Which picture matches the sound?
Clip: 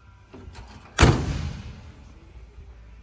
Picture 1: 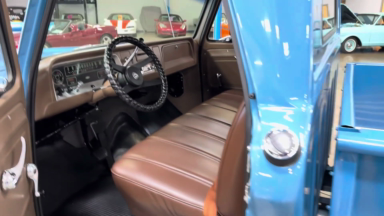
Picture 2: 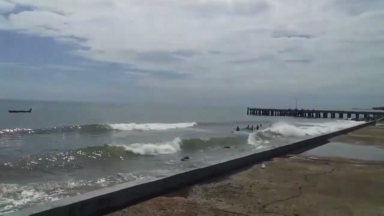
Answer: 1